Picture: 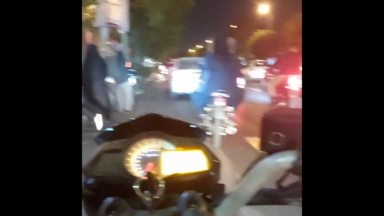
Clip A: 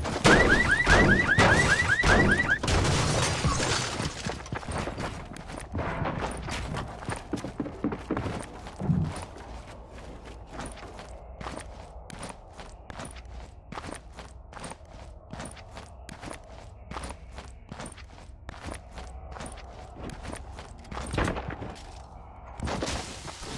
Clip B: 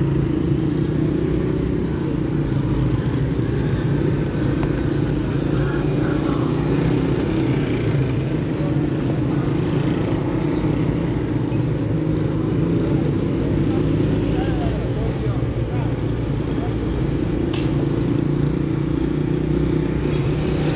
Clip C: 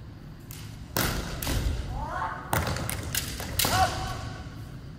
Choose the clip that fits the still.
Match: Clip B